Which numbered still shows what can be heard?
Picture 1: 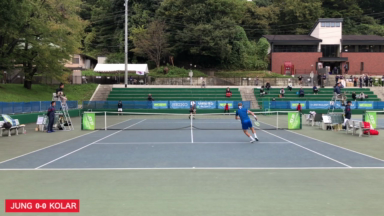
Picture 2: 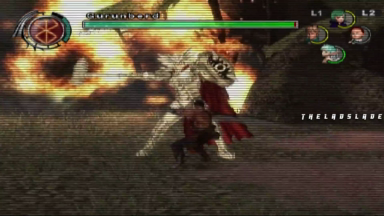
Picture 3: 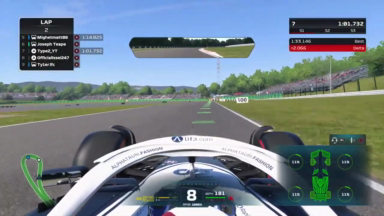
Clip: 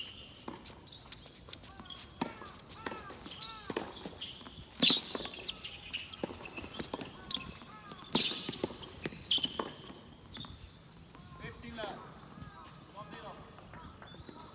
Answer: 1